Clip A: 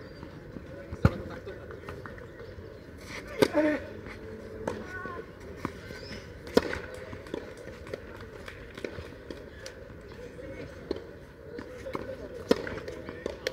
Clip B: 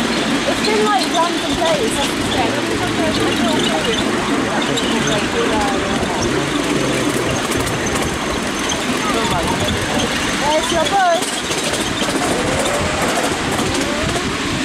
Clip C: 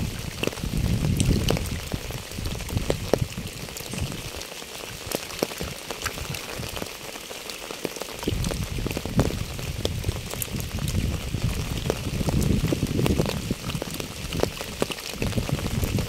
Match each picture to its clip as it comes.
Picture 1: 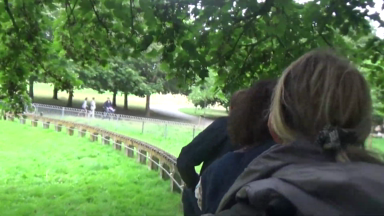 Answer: B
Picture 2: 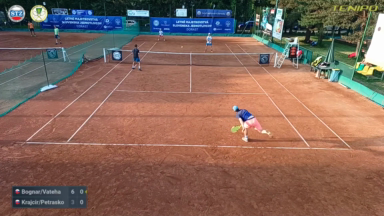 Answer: A